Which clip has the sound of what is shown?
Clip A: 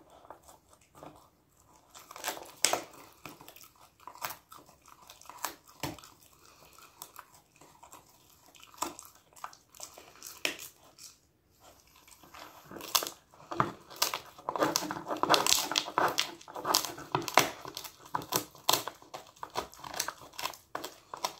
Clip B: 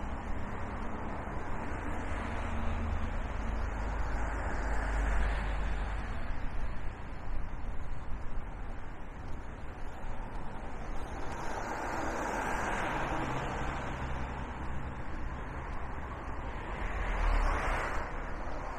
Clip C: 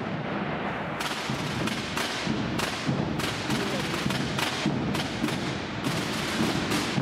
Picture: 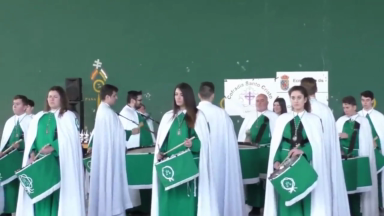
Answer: C